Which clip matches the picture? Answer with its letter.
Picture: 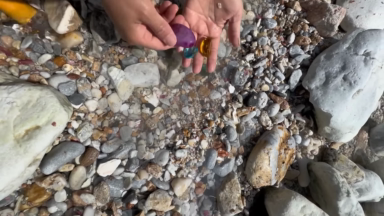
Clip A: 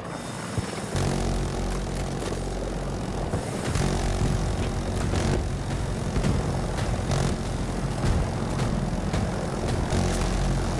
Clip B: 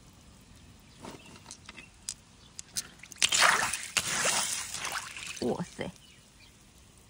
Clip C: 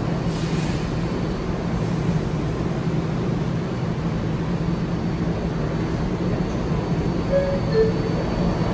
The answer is B